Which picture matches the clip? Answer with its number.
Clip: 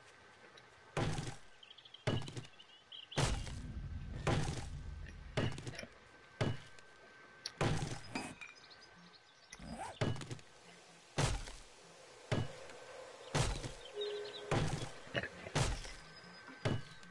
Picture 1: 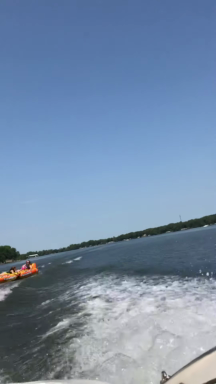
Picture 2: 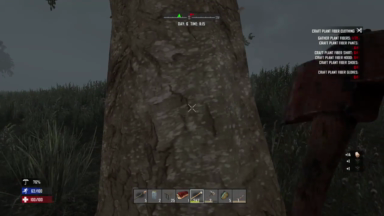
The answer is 2